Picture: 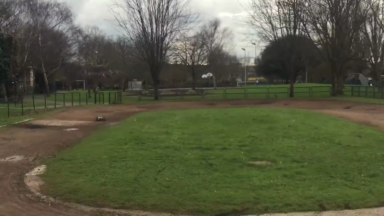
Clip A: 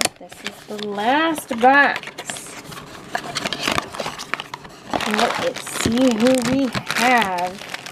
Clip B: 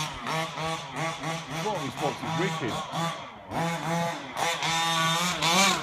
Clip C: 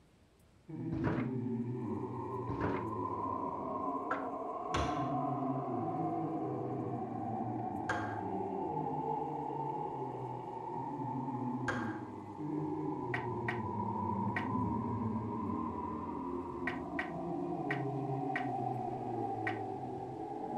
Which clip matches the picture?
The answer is B